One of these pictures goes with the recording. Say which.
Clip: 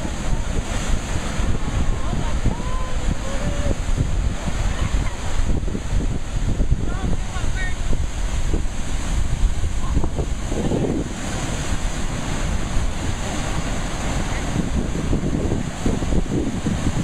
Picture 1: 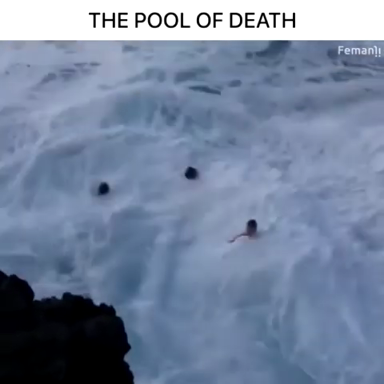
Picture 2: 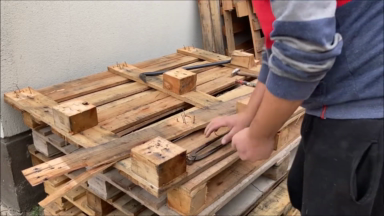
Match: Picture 1